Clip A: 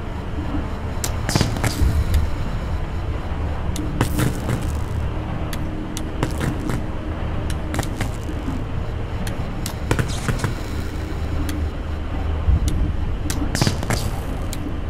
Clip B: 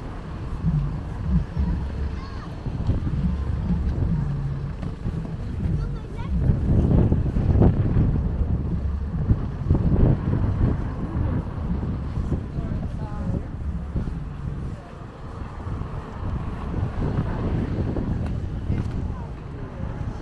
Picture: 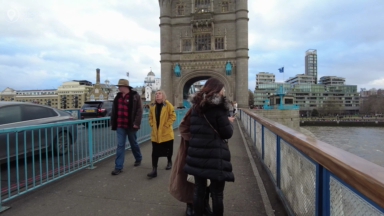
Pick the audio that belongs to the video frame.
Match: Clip B